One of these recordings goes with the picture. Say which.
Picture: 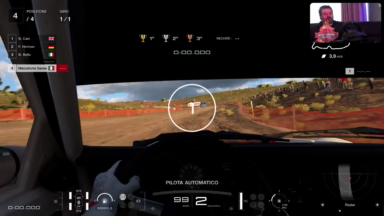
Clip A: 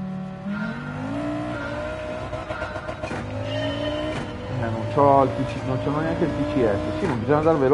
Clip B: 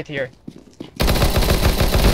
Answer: A